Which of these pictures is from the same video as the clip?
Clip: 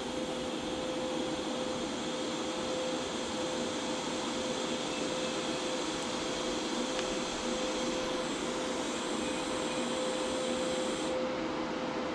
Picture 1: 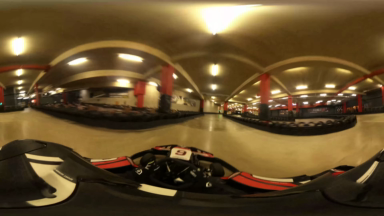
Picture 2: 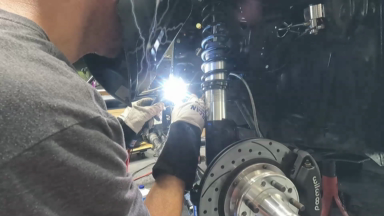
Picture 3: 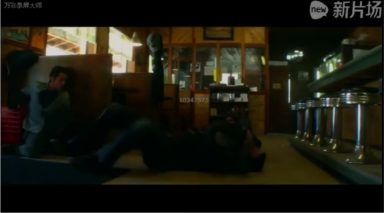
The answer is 2